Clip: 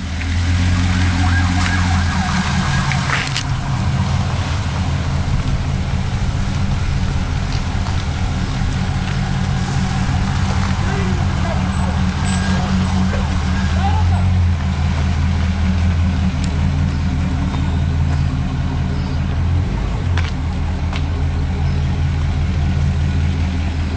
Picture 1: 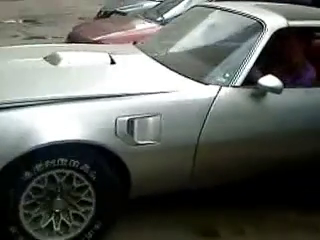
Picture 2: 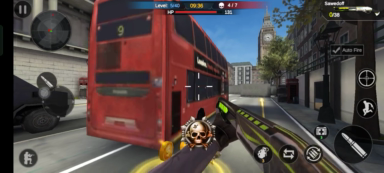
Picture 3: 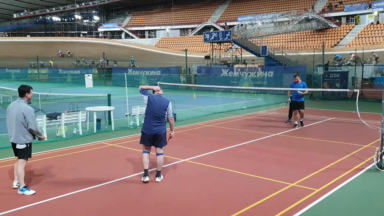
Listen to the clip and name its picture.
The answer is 1